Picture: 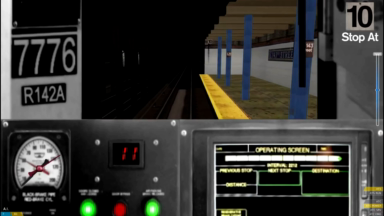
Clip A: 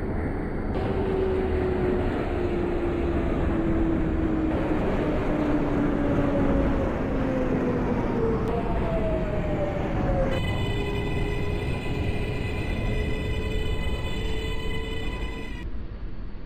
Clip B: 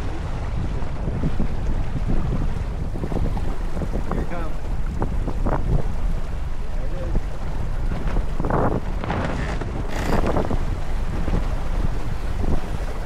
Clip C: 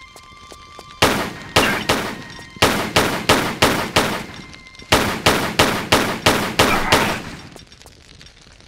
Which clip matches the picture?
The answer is A